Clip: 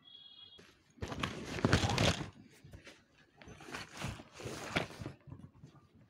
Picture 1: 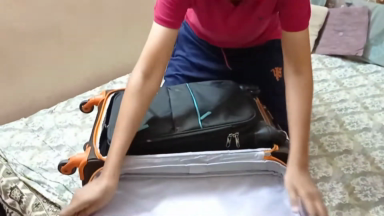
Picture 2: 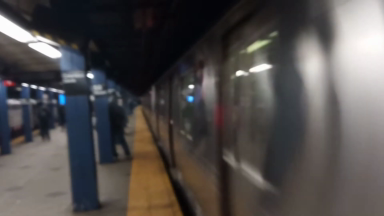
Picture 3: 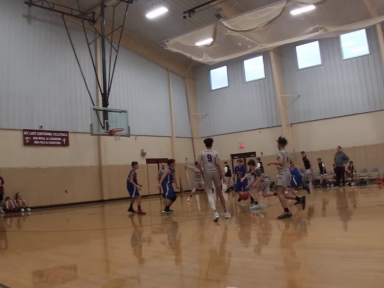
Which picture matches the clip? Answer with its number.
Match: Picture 1